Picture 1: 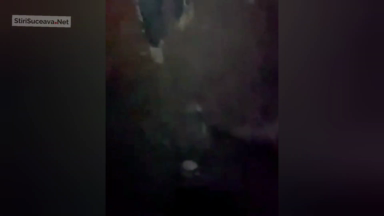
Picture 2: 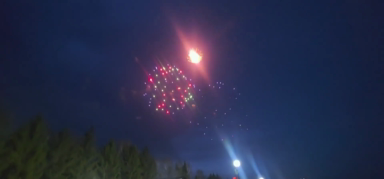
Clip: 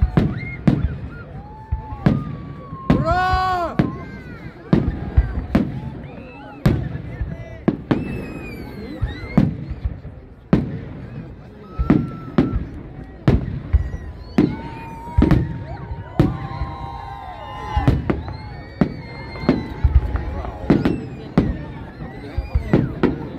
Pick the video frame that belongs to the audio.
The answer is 2